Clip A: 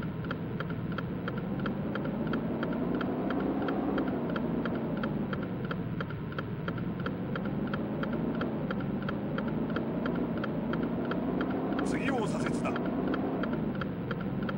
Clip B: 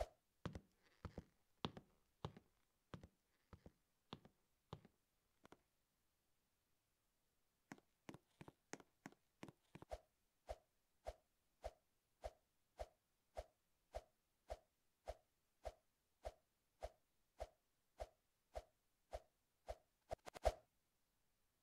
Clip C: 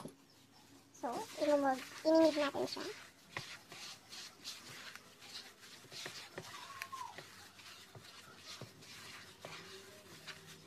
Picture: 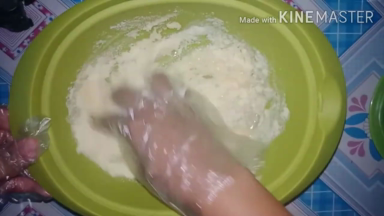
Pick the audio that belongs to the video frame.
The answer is C